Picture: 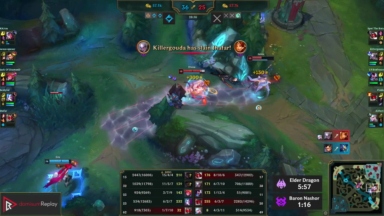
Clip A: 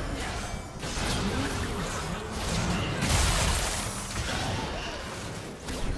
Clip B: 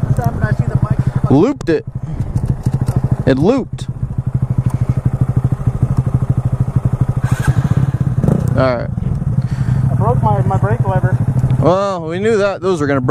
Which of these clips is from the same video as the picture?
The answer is A